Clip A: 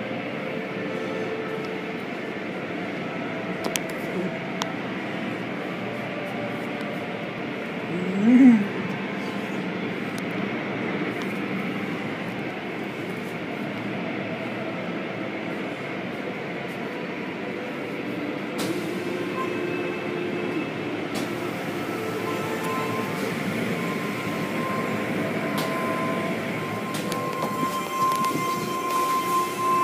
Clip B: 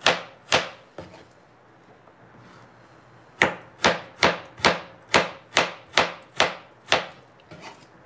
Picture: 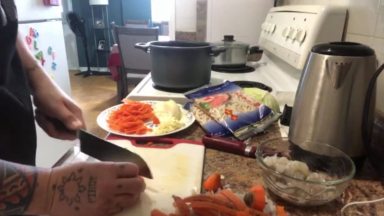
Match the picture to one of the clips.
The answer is B